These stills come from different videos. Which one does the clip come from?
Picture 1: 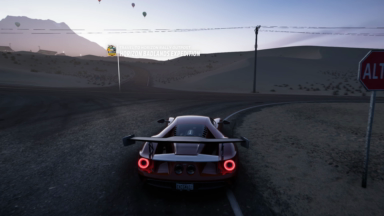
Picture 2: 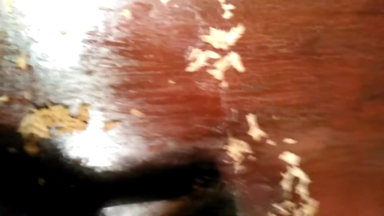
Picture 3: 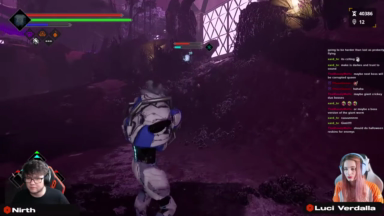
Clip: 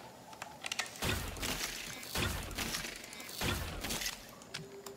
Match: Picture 3